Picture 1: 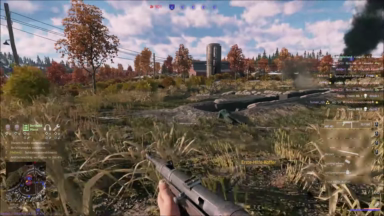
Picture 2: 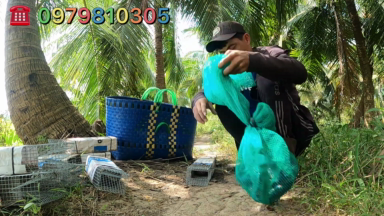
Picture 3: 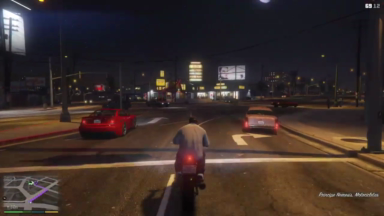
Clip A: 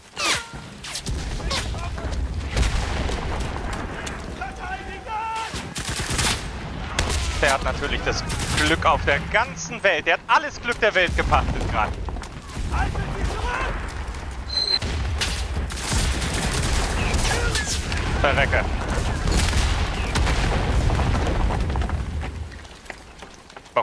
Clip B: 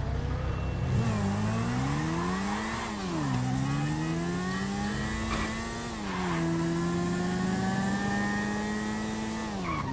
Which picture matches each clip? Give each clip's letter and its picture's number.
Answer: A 1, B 3